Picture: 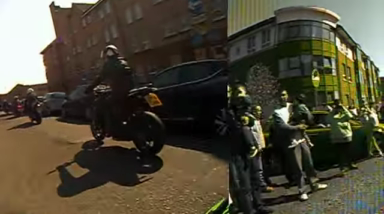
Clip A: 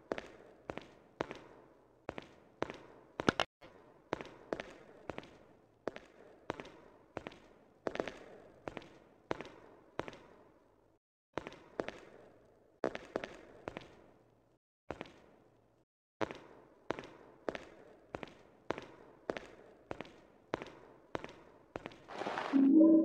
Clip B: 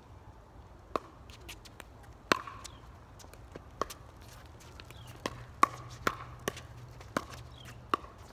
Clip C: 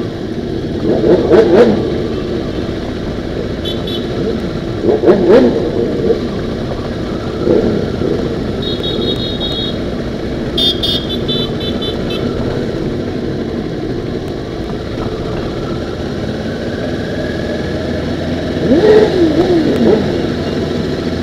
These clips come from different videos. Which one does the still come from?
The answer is C